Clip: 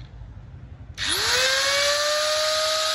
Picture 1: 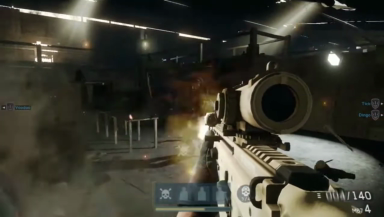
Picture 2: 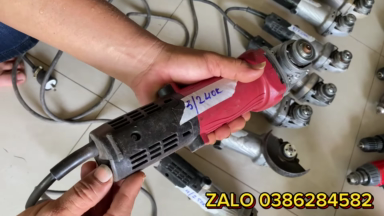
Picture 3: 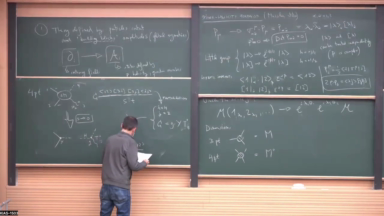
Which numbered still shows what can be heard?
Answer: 2